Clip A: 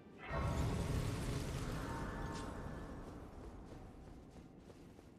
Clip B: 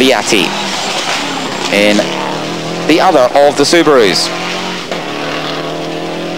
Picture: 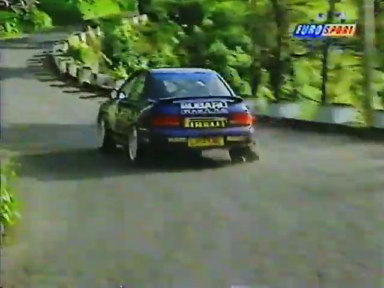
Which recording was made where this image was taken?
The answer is B